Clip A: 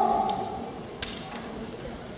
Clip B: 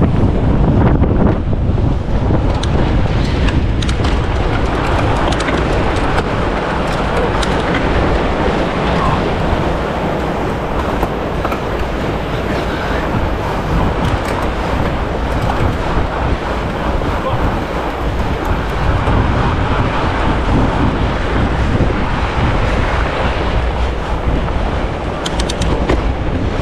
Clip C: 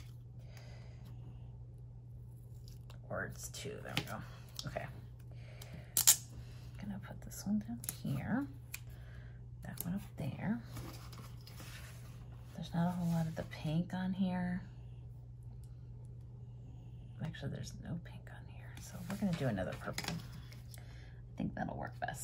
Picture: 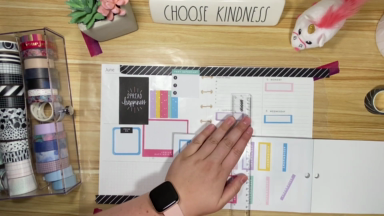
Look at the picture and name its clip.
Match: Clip C